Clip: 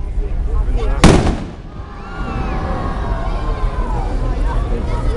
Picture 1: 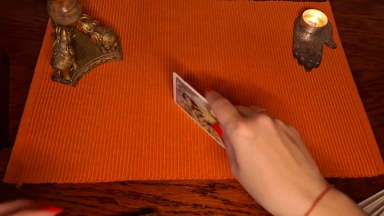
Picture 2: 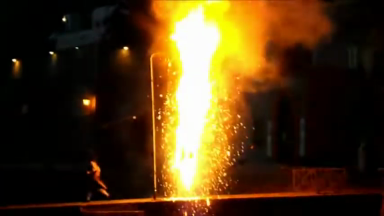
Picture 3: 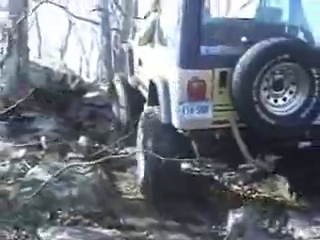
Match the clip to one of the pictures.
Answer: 2